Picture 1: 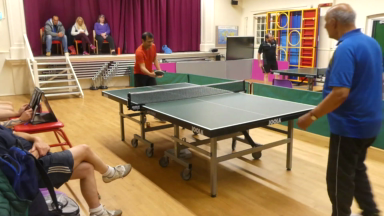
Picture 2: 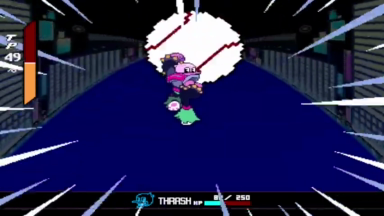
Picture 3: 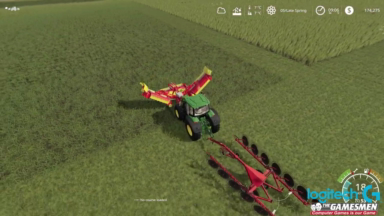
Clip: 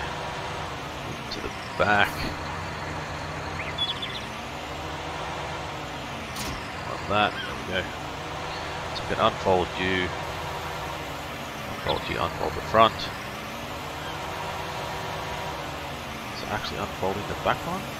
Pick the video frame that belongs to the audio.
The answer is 3